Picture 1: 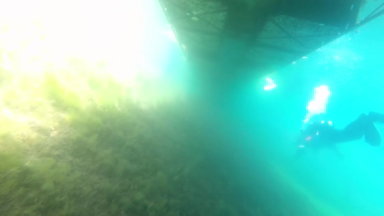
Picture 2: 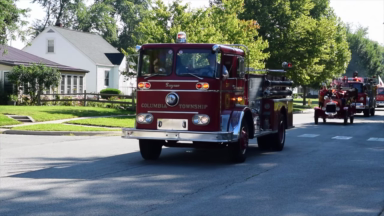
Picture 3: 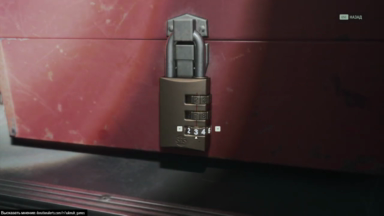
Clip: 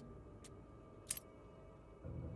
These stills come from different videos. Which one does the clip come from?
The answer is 3